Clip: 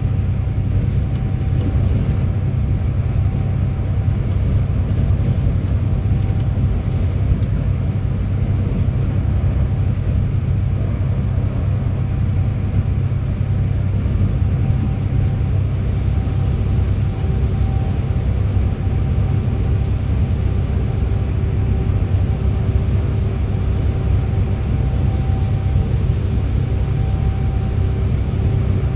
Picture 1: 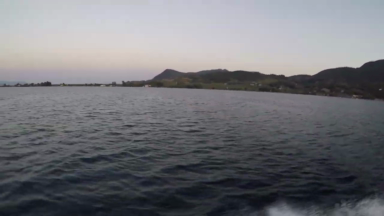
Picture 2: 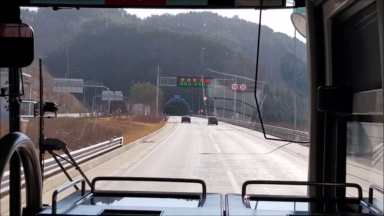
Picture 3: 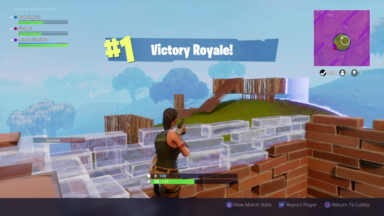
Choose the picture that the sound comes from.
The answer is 2